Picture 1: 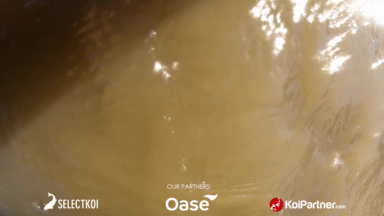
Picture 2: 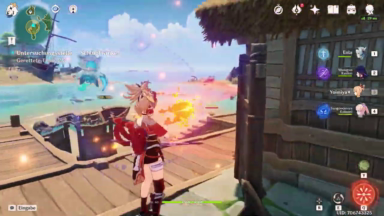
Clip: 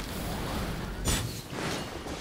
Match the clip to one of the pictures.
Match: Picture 2